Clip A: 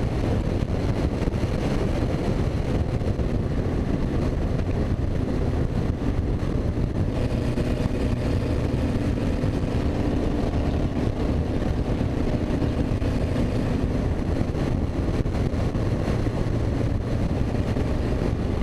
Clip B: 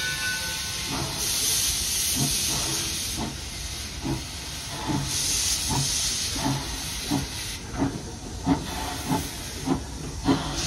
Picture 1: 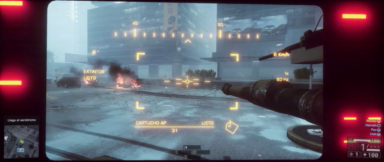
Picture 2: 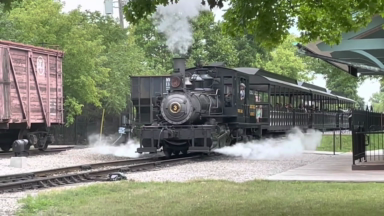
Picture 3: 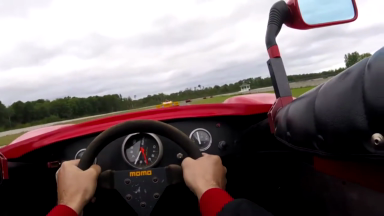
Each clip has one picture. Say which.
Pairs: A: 3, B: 2